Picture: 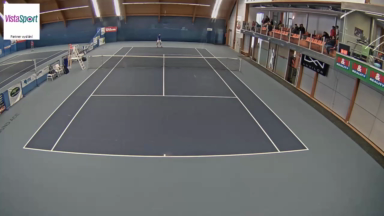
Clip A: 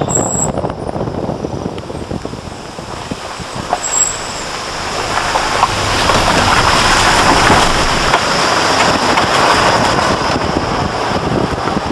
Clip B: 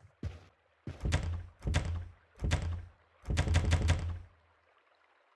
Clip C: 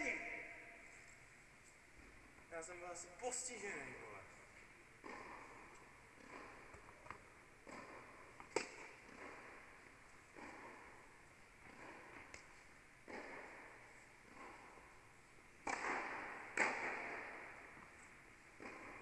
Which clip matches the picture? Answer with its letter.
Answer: C